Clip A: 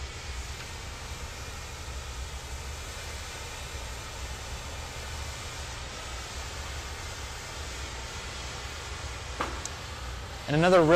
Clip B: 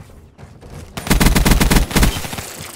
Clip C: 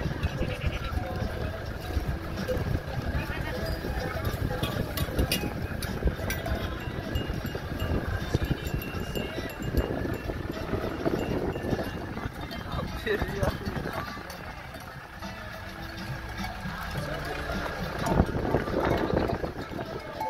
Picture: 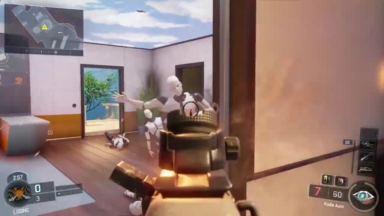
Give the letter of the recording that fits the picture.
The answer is B